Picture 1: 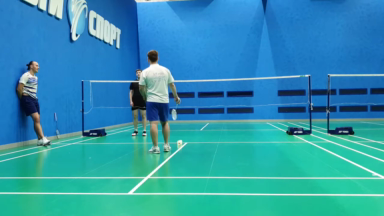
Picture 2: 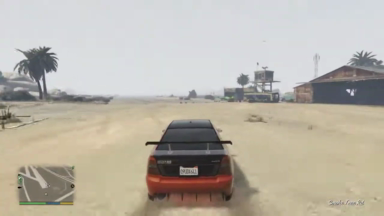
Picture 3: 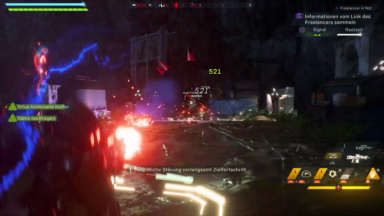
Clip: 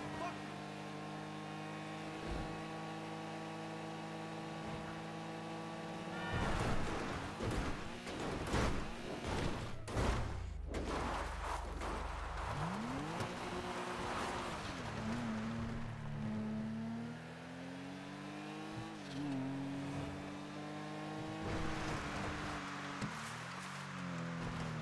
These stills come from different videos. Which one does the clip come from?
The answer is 2